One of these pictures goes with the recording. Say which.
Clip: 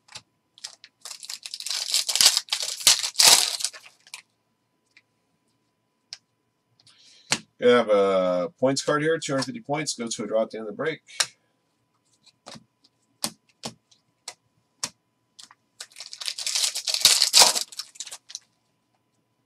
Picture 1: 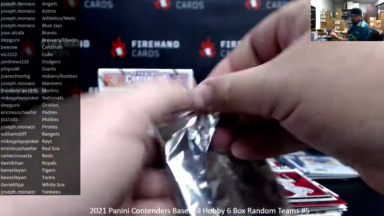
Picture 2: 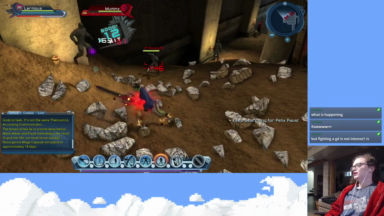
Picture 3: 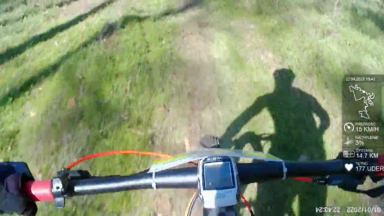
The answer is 1